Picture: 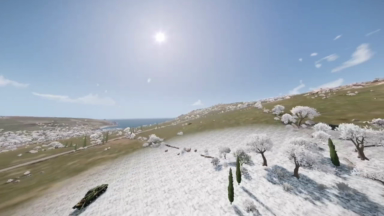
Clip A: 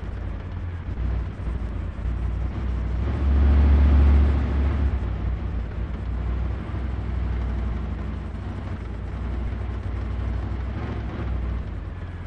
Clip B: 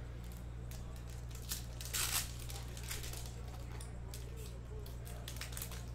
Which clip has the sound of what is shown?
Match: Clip A